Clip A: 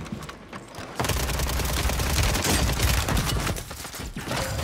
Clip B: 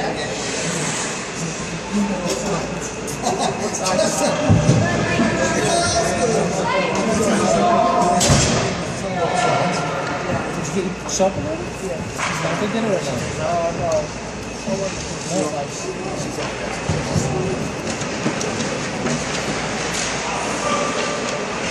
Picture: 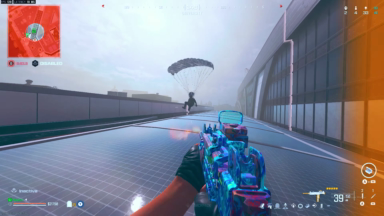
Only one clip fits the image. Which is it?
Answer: A